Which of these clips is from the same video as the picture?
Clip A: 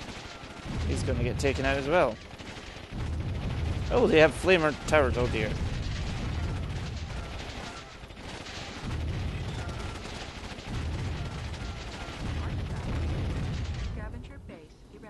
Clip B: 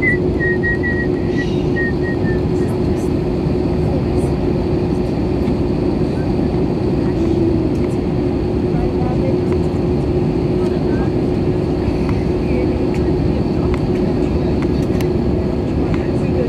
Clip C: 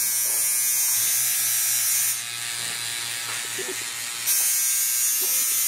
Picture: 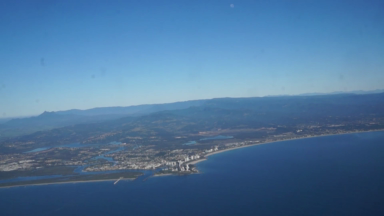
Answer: B